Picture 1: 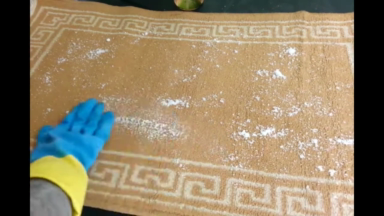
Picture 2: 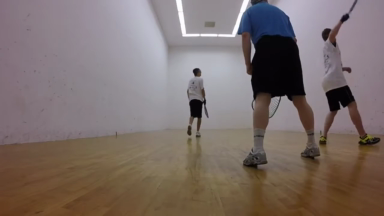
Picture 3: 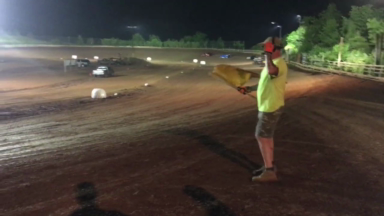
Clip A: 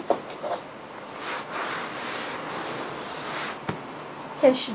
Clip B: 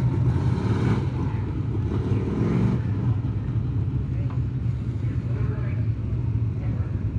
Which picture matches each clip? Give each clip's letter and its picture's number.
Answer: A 1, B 3